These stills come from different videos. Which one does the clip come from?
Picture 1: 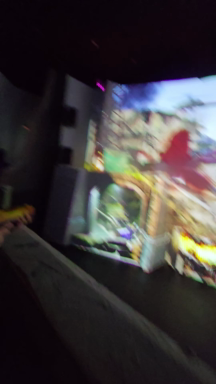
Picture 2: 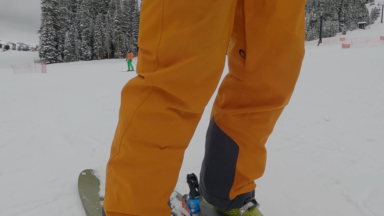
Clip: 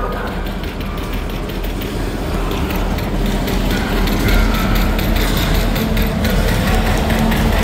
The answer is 1